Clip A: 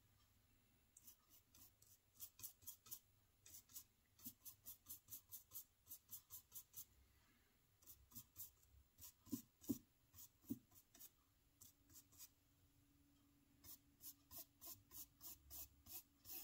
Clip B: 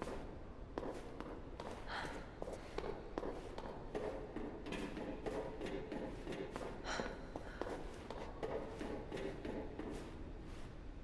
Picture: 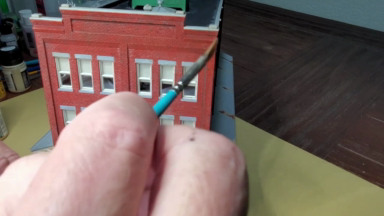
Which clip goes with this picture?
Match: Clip A